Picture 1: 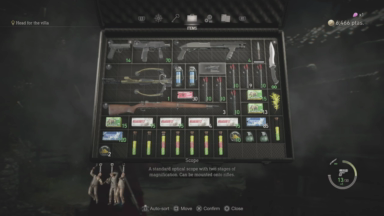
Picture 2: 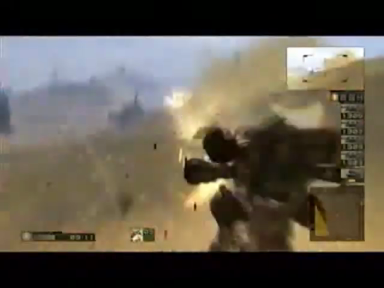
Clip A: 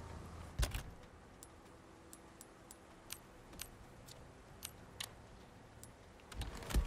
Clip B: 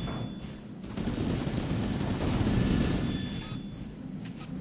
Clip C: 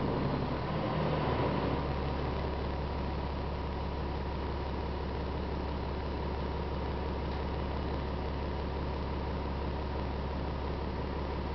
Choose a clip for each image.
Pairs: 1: A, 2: B